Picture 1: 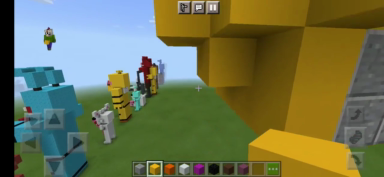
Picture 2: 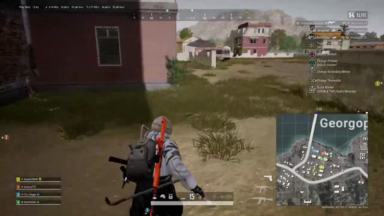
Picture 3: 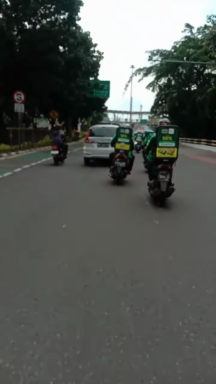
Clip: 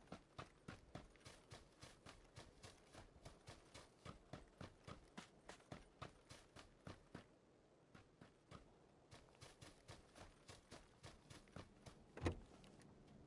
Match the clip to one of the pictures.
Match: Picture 2